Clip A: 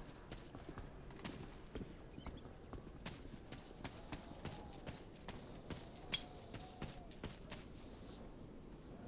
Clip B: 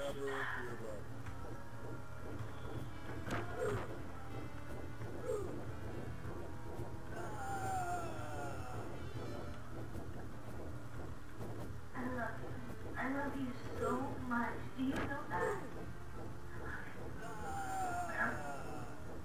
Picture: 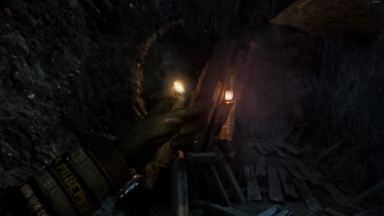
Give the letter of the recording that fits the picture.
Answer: A